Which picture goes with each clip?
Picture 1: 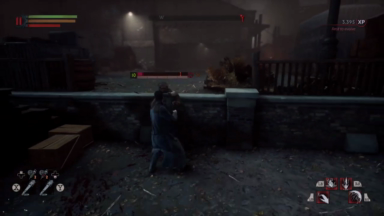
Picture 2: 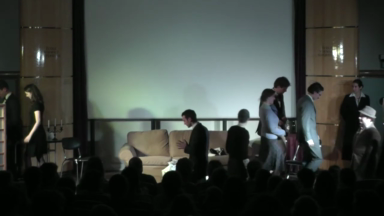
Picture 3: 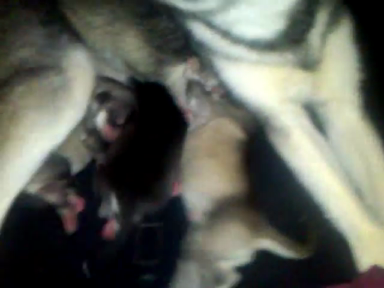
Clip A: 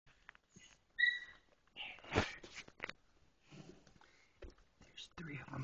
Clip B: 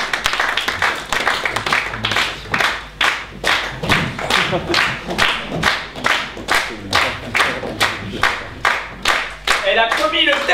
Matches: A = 3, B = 2